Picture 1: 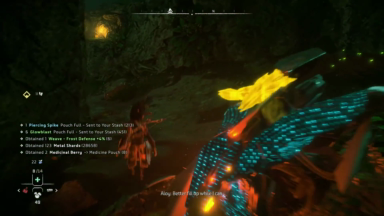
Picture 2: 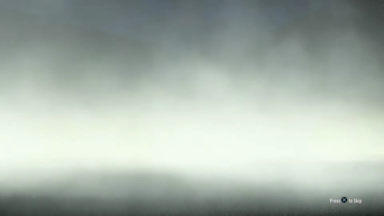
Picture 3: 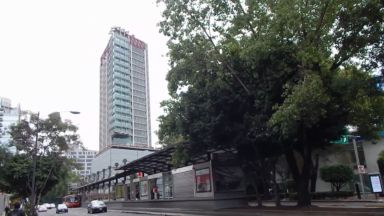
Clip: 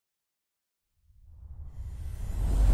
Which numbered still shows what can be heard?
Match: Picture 2